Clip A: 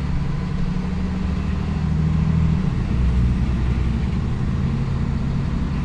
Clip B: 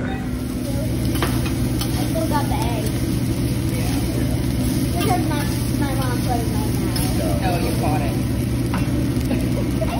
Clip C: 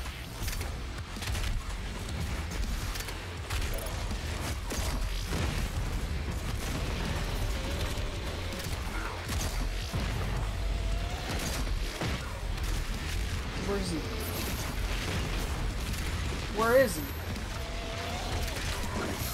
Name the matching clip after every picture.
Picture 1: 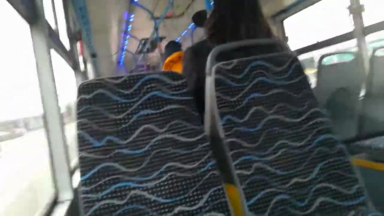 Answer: A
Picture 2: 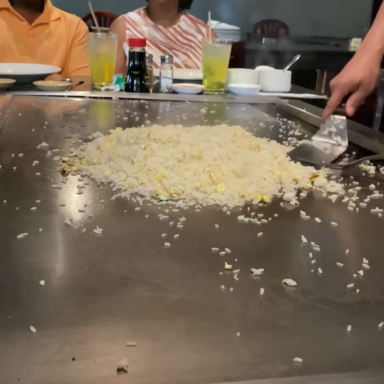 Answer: B